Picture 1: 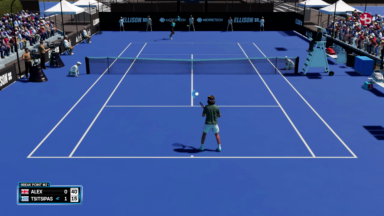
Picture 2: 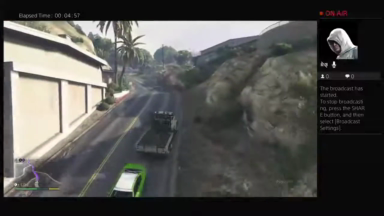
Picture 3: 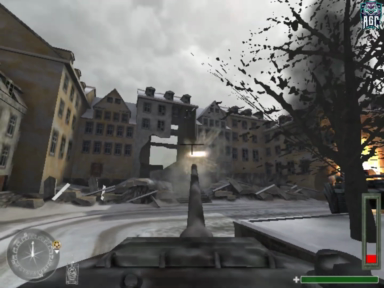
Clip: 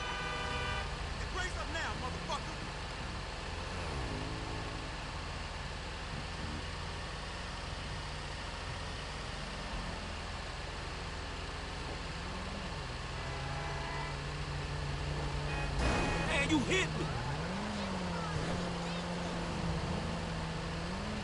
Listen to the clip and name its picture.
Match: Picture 2